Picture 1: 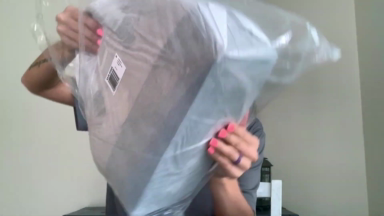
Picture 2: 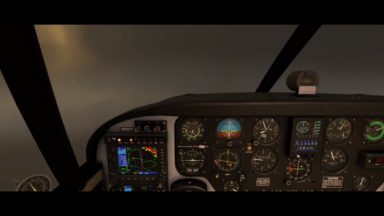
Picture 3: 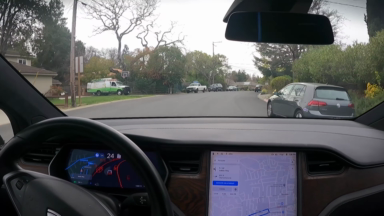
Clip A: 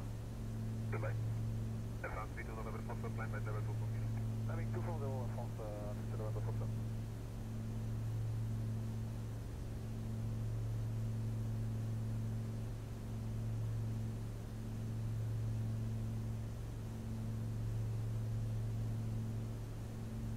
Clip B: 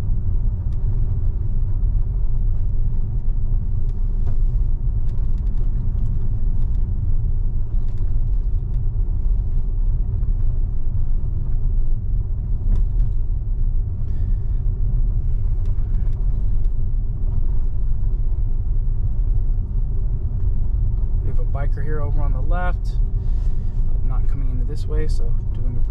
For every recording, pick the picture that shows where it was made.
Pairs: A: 2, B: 3